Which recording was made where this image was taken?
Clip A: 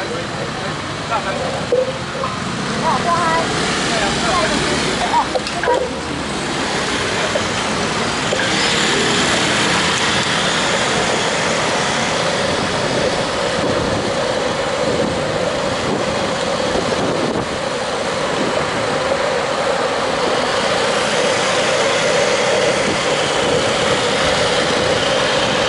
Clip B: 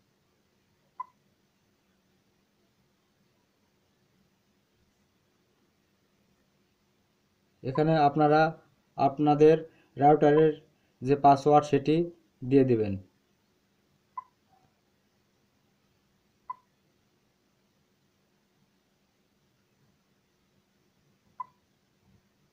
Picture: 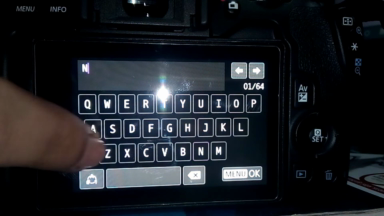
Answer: B